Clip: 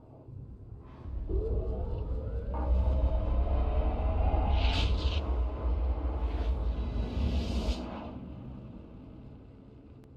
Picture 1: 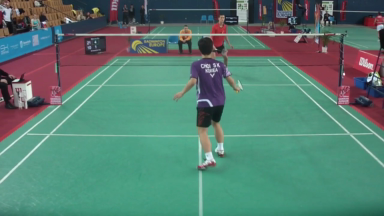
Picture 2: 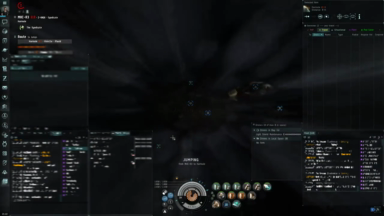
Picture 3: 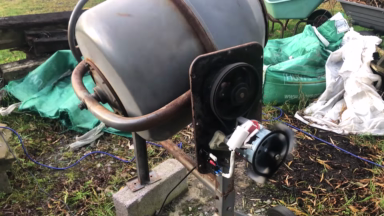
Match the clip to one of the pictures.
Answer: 2